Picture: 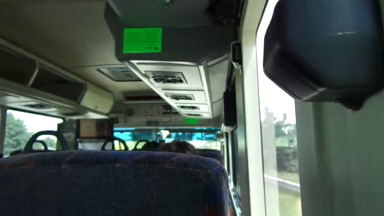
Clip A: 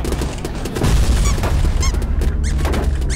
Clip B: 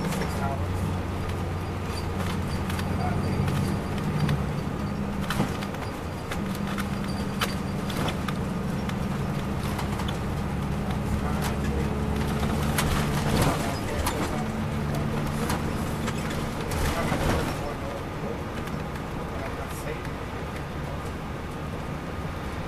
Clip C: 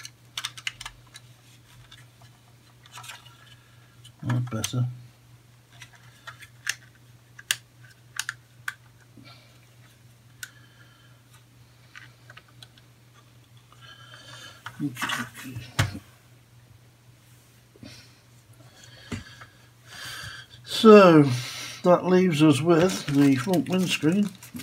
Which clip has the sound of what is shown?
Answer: B